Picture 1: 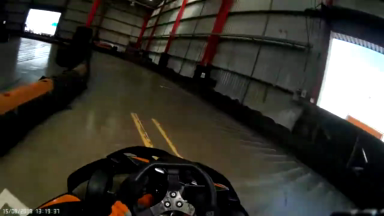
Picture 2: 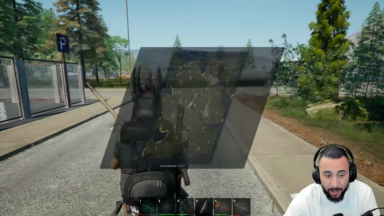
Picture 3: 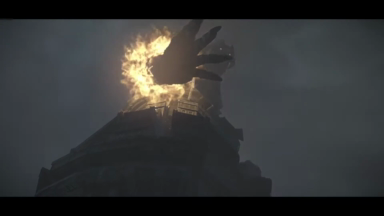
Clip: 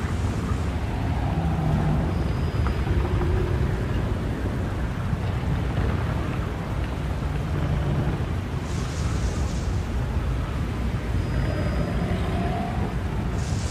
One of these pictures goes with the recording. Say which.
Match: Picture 3